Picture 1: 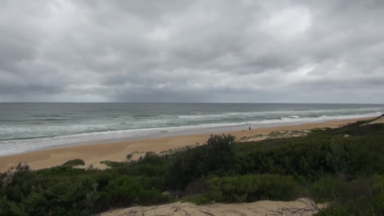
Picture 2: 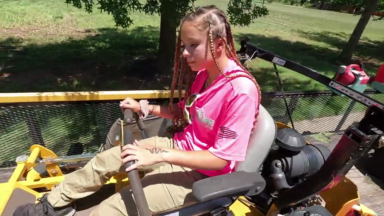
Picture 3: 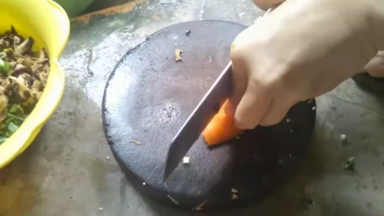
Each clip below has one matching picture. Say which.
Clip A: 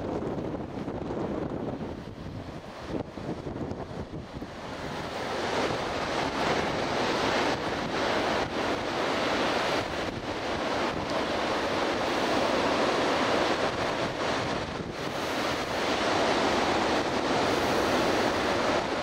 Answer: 1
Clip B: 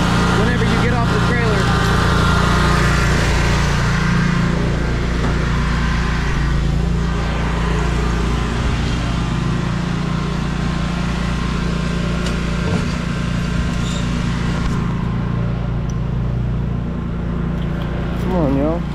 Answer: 2